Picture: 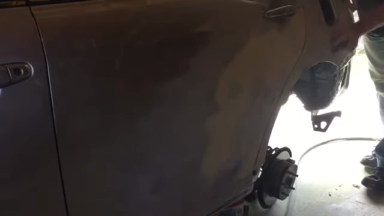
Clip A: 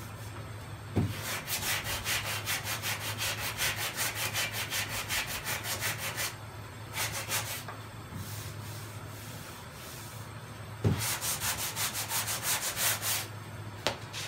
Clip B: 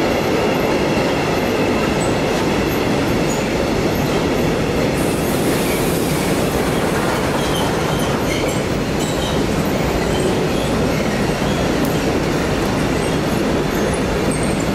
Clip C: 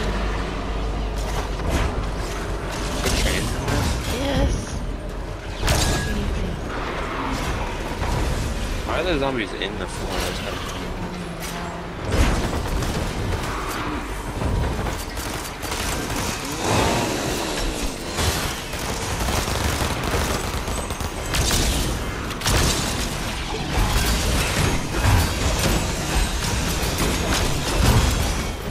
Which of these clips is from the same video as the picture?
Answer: A